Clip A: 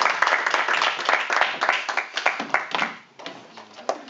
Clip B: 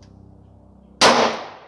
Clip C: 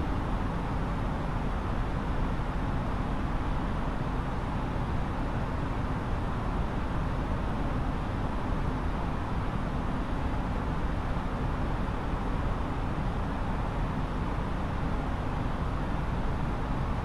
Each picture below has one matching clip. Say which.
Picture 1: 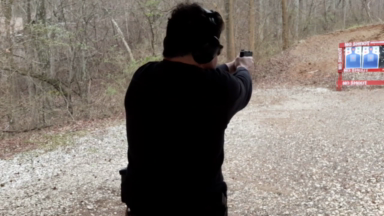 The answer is B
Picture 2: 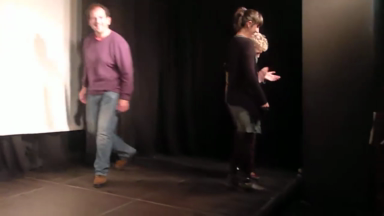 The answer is A